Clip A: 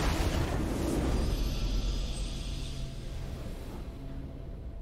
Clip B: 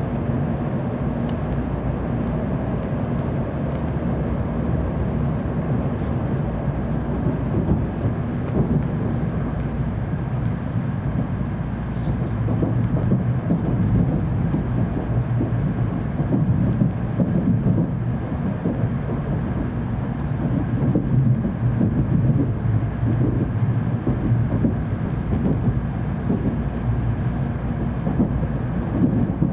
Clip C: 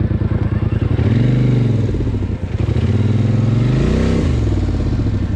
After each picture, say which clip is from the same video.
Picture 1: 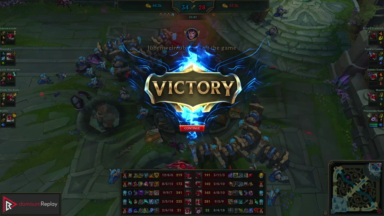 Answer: A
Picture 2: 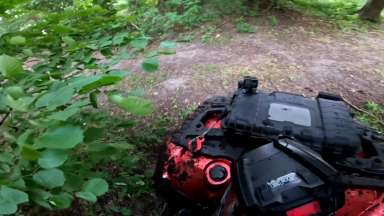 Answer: C